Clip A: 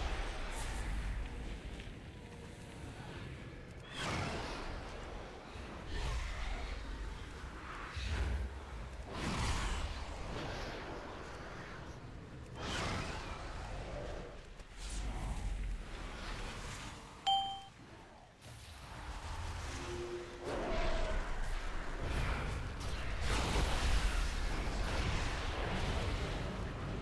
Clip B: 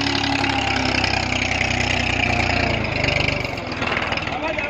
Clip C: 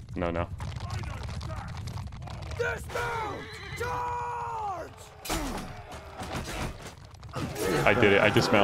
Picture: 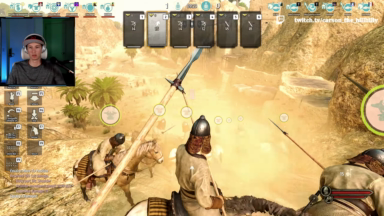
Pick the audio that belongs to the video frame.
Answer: C